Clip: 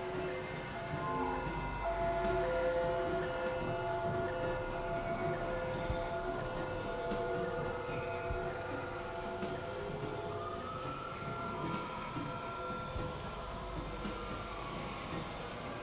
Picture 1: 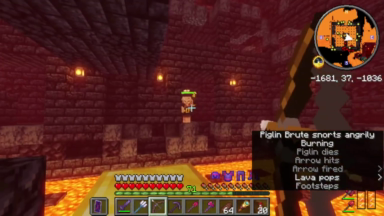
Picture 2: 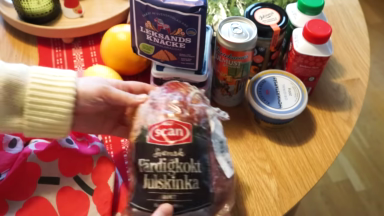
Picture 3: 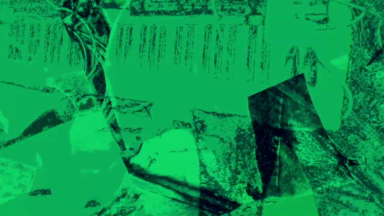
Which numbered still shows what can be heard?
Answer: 3